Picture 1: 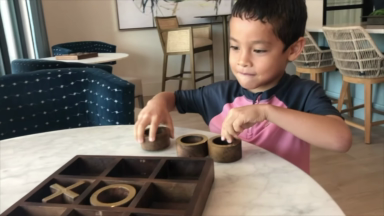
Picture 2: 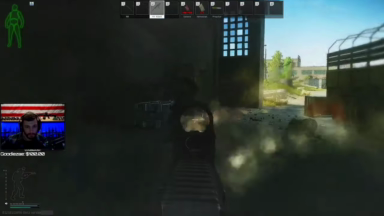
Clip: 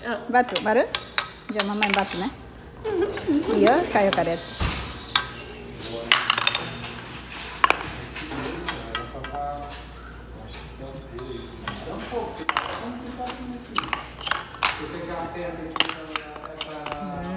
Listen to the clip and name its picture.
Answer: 1